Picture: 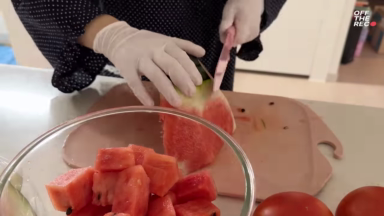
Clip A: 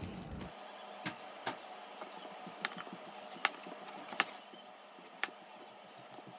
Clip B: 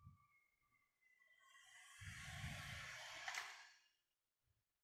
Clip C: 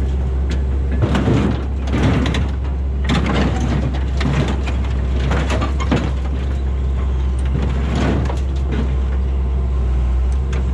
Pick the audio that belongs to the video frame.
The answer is A